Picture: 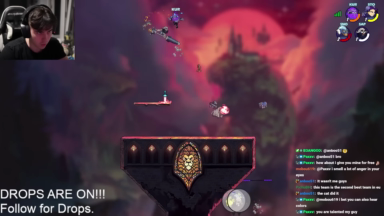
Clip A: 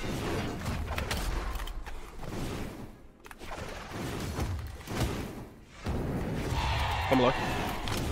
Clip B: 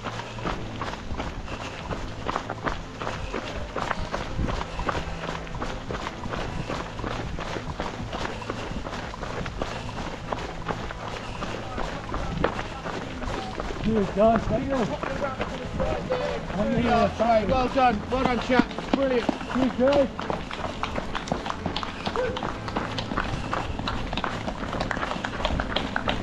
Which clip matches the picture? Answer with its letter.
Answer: A